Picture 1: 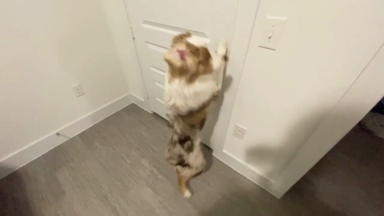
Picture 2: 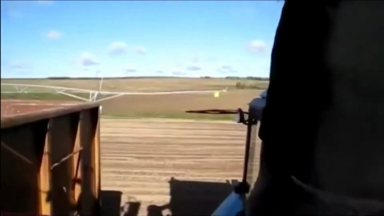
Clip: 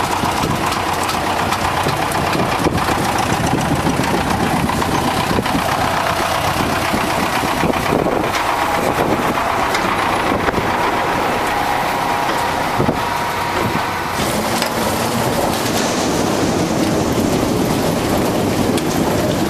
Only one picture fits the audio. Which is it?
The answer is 2